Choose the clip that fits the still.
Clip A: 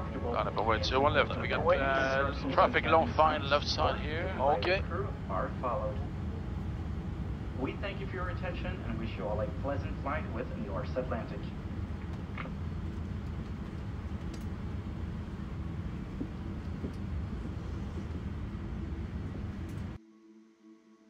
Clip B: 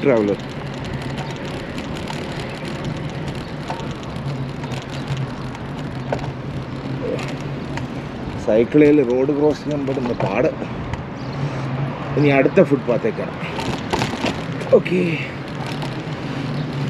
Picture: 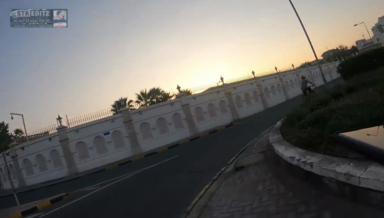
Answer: B